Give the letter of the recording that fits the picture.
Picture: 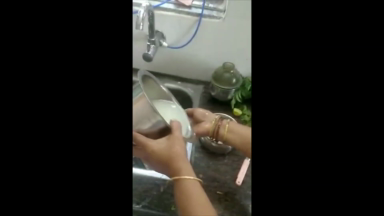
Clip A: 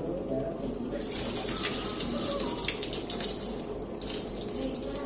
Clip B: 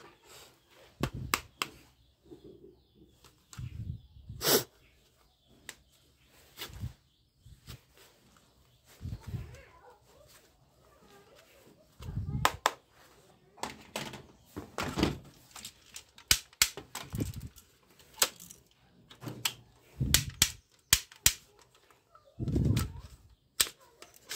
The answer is A